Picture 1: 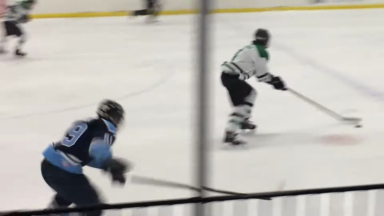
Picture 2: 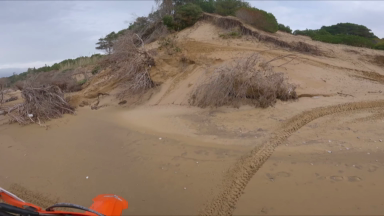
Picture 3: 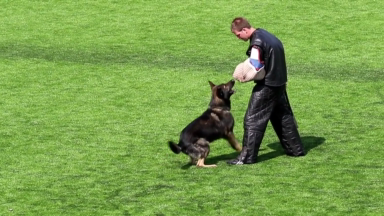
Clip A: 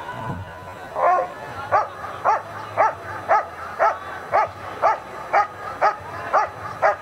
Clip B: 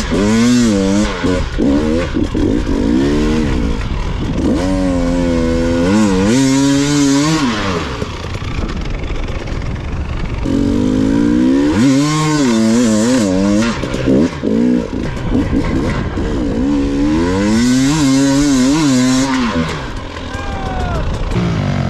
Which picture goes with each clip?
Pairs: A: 3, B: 2